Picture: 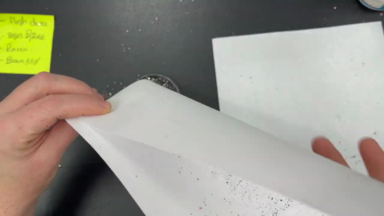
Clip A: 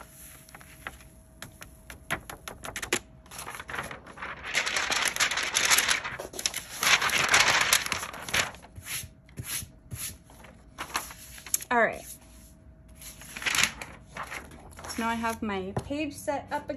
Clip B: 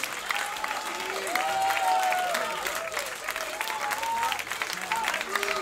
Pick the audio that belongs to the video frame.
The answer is A